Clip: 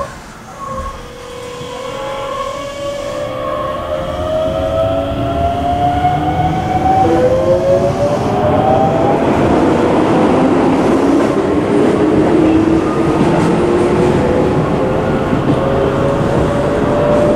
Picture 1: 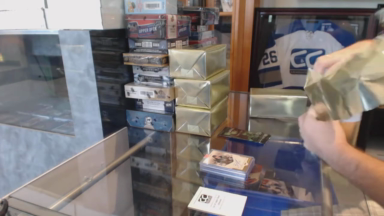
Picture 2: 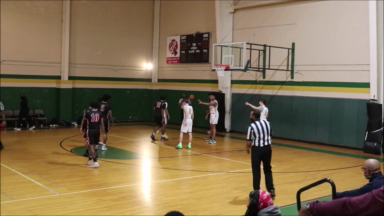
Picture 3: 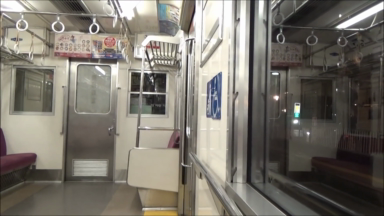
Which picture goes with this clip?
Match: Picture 3